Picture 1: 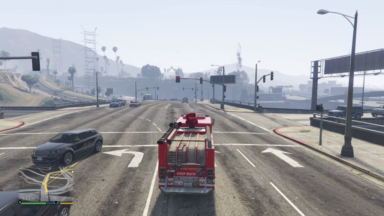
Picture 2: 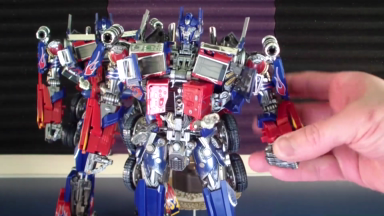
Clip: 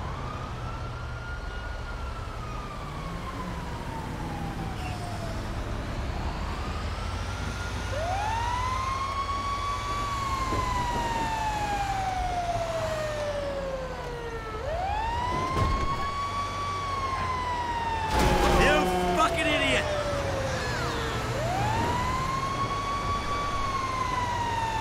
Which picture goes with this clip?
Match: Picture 1